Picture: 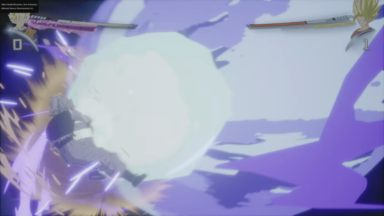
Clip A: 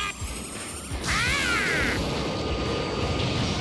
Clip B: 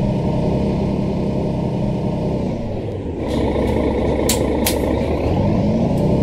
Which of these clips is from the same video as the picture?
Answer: A